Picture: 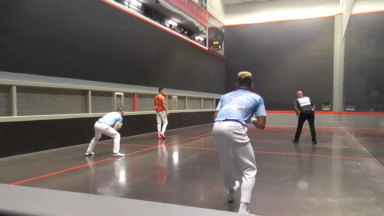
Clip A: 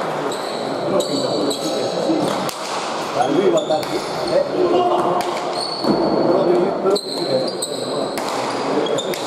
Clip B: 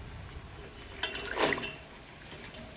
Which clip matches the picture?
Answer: A